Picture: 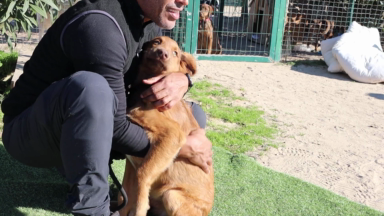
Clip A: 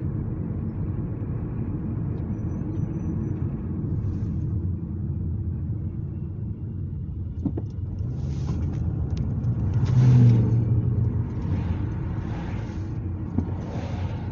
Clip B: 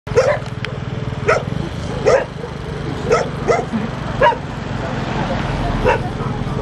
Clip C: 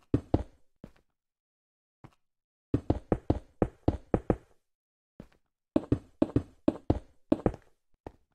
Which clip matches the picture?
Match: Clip B